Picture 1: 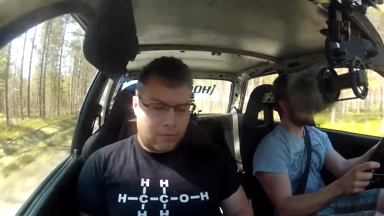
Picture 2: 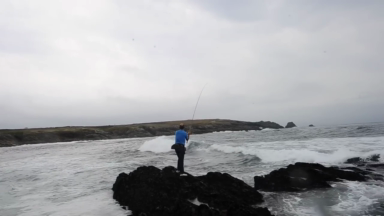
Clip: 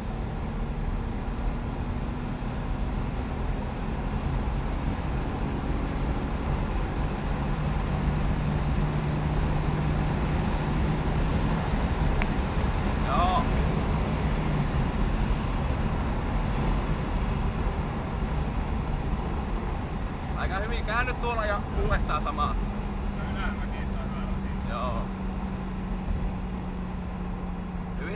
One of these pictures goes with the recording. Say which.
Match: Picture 1